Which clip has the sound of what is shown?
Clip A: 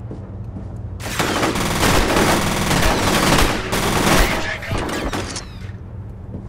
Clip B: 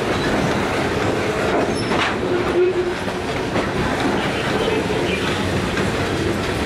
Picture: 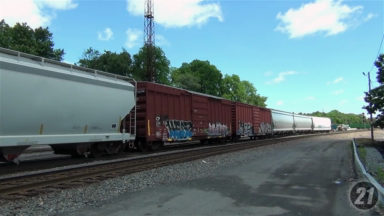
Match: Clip B